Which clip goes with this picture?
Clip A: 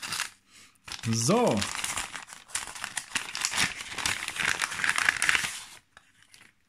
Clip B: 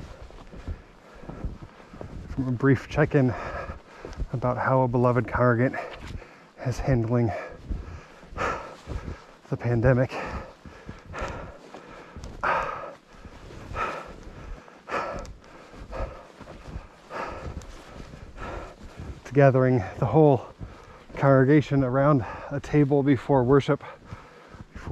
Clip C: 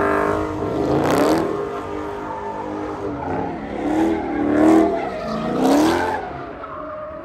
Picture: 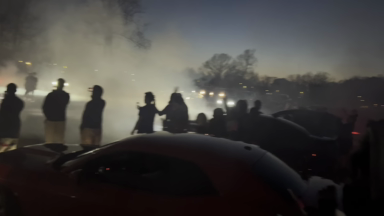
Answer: C